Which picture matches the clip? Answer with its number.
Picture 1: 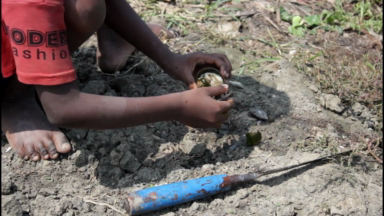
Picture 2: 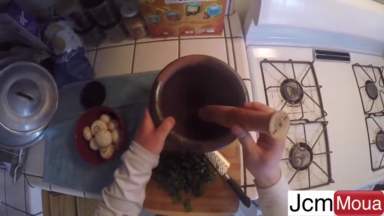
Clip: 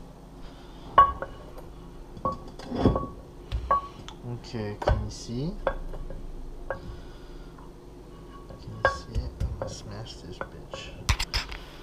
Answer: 2